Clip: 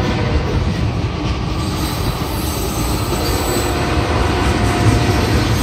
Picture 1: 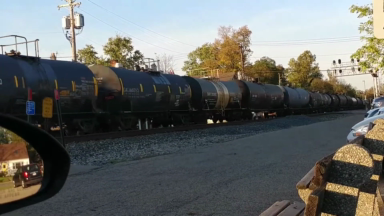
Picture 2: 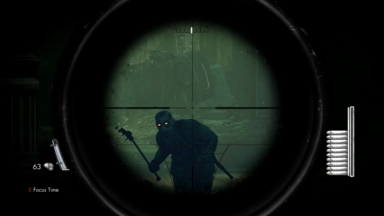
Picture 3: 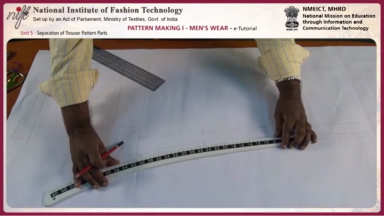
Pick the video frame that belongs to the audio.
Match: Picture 1